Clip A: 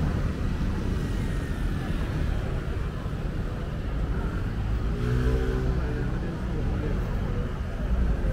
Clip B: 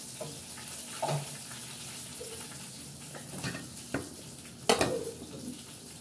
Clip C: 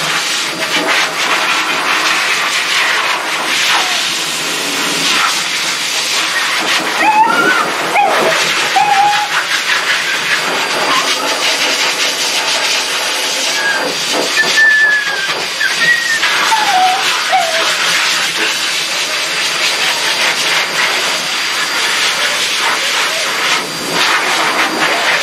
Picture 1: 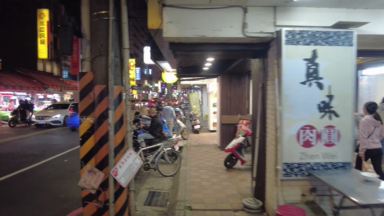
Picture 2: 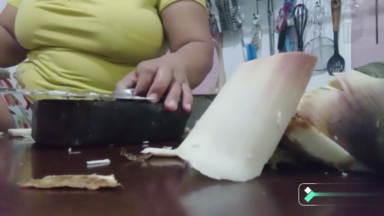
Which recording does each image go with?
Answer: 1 A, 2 B